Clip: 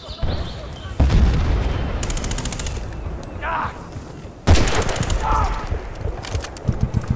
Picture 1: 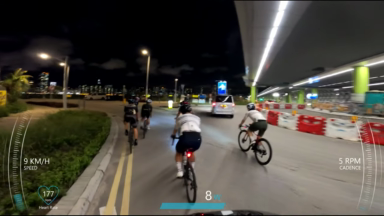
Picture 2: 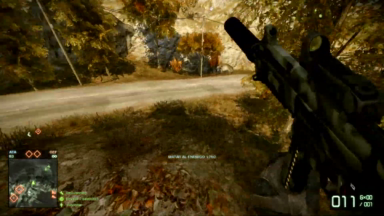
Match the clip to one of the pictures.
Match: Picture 2